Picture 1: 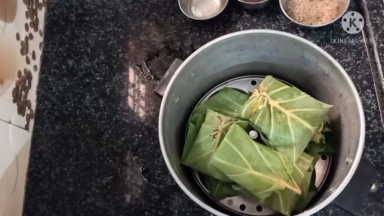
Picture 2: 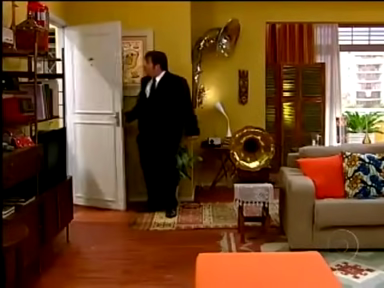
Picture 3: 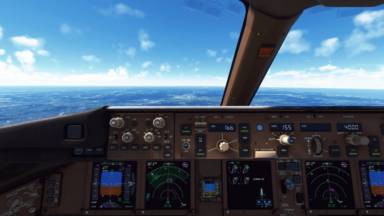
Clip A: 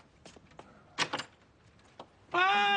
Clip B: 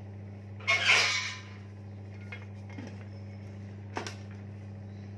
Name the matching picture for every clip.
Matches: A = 2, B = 1